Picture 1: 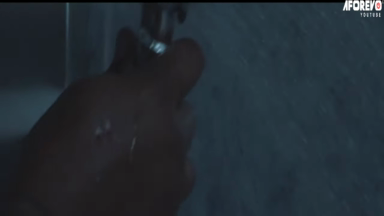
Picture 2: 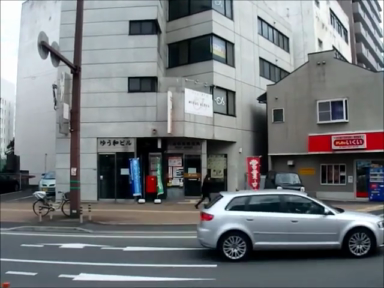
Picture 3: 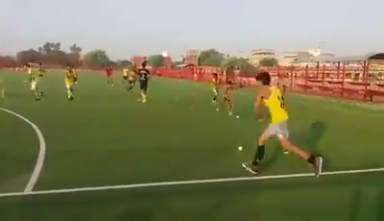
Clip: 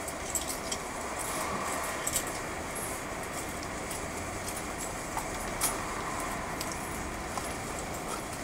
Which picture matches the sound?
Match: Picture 2